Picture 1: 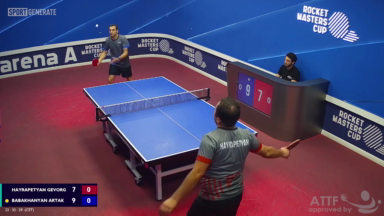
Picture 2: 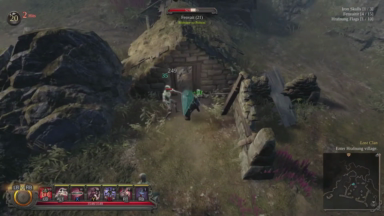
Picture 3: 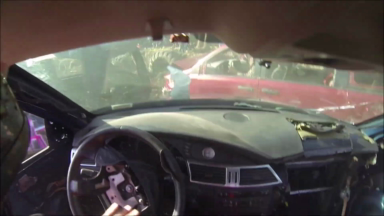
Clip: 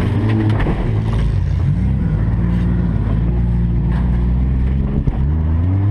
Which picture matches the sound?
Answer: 3